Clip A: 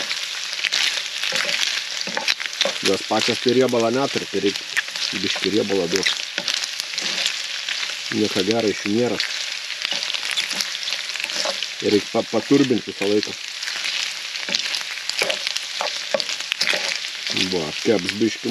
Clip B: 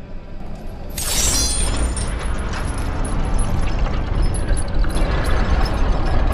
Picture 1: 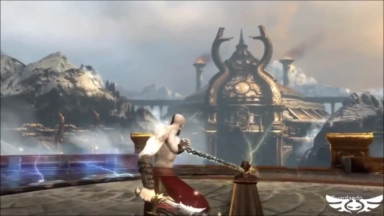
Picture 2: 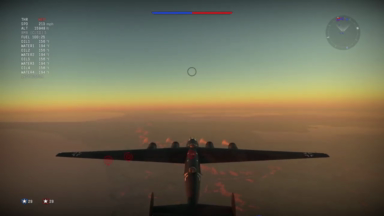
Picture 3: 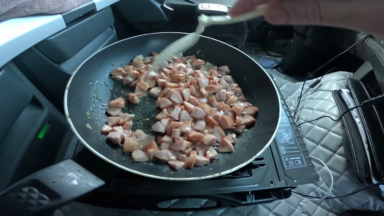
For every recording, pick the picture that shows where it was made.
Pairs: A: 3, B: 1